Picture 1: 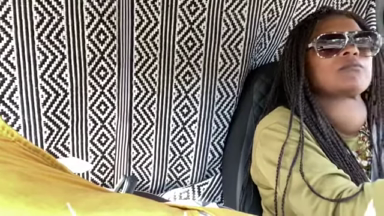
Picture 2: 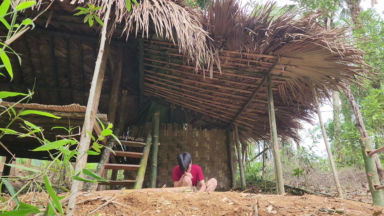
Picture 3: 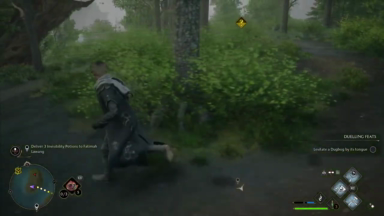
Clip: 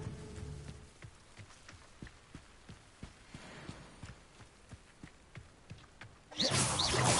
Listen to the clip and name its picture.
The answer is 3